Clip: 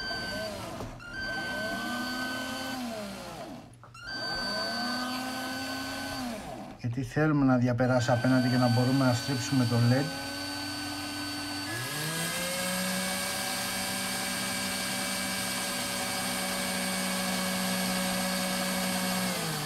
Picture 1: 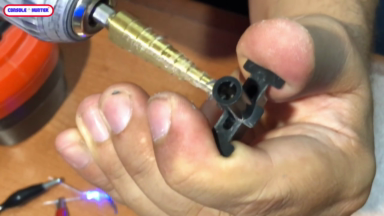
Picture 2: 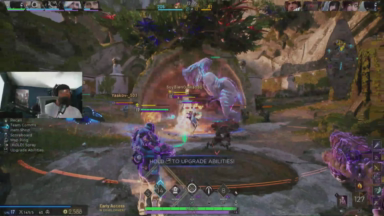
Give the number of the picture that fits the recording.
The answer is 1